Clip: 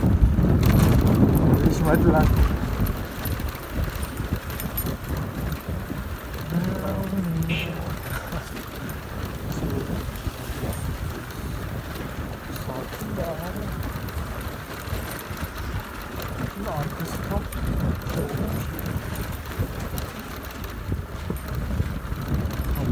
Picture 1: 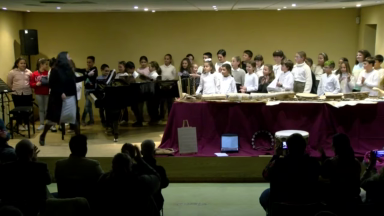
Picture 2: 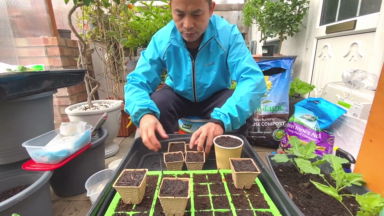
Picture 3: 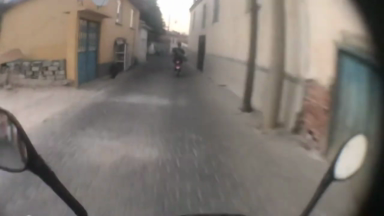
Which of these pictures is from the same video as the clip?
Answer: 3